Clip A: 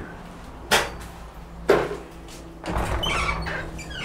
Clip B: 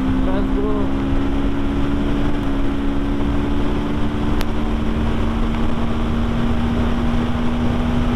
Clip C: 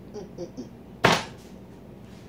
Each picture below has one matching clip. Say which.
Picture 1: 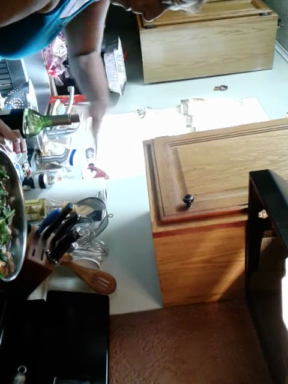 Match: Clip C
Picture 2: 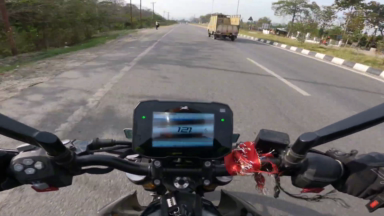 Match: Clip B